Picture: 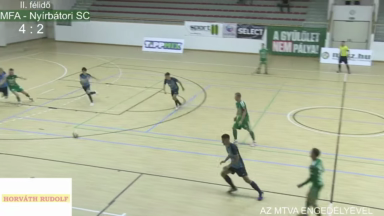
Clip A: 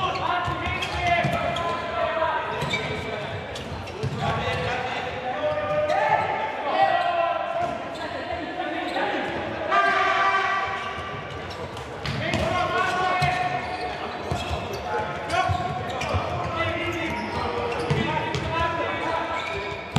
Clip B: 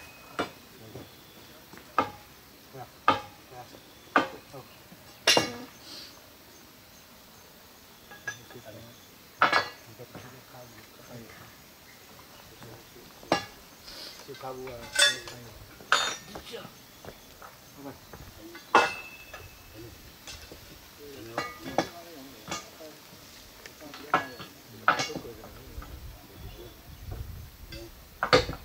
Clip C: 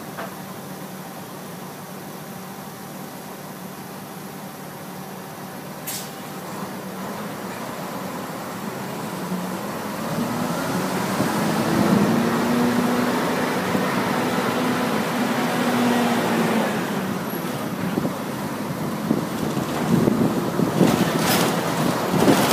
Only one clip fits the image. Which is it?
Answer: A